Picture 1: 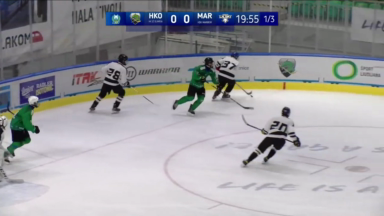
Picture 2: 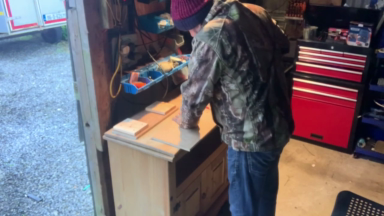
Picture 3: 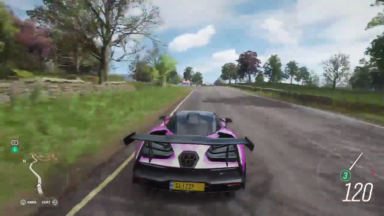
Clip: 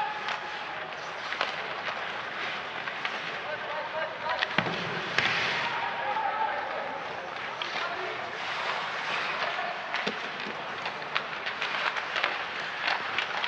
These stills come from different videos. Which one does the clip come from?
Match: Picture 1